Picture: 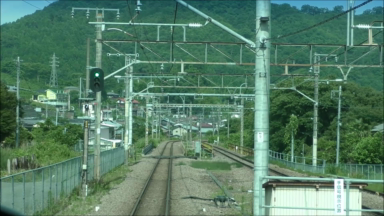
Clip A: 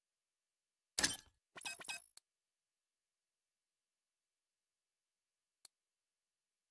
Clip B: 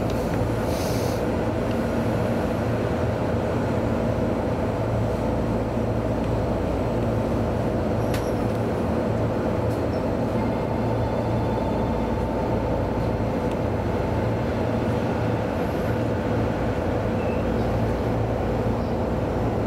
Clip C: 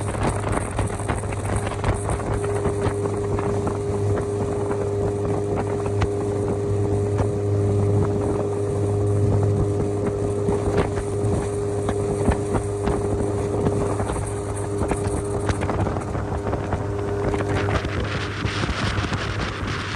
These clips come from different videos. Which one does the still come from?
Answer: B